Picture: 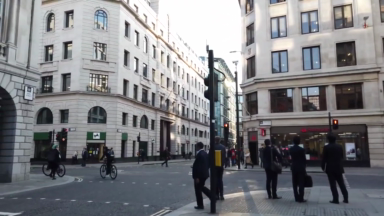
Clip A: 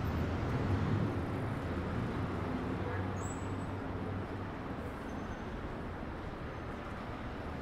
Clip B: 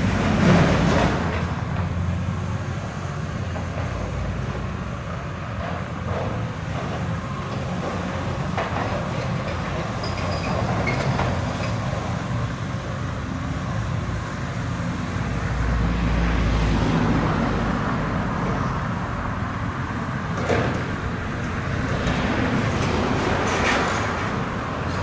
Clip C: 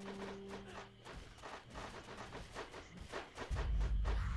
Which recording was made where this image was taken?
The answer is A